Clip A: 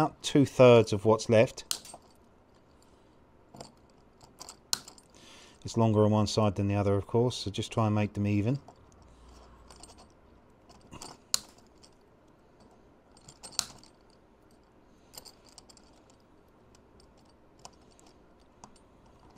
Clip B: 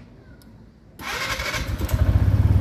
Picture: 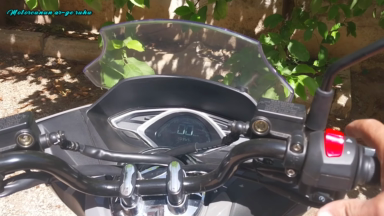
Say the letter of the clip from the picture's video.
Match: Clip B